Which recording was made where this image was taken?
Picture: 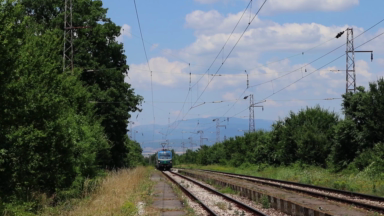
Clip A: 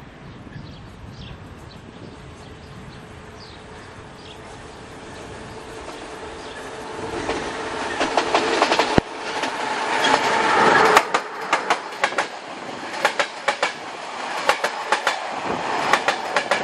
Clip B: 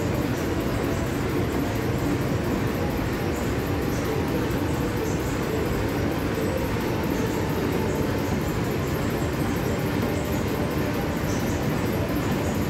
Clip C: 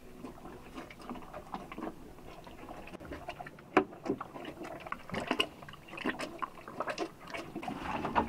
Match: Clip A